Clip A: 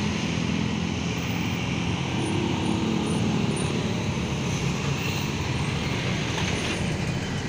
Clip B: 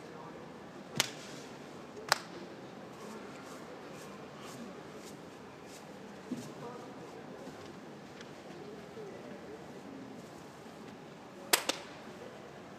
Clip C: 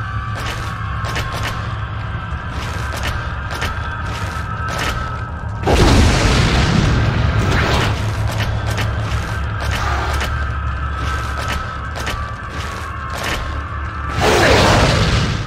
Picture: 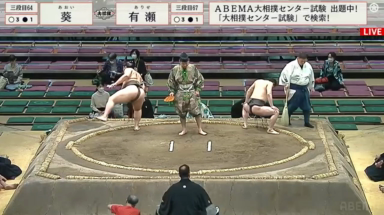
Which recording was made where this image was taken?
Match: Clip B